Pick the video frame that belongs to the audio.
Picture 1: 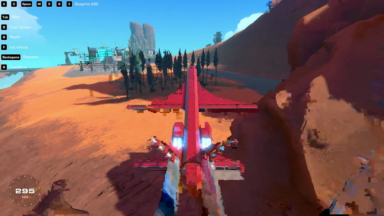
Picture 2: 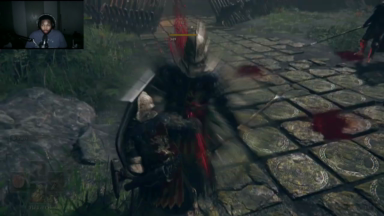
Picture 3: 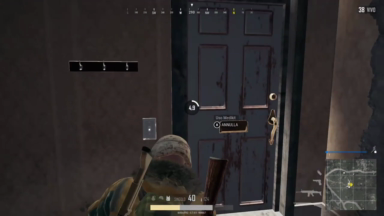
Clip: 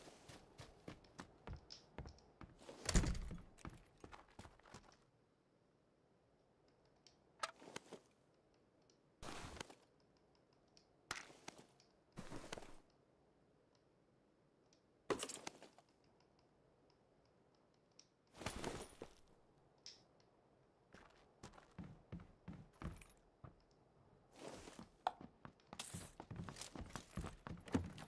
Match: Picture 3